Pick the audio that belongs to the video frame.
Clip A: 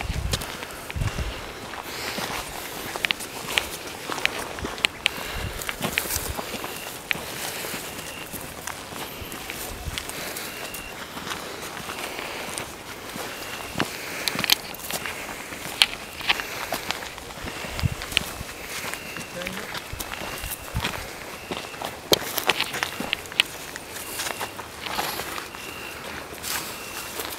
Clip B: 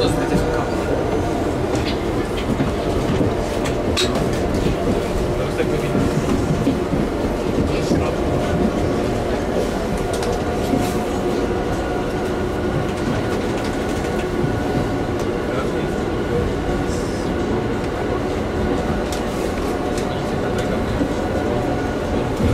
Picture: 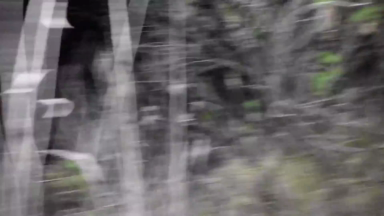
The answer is A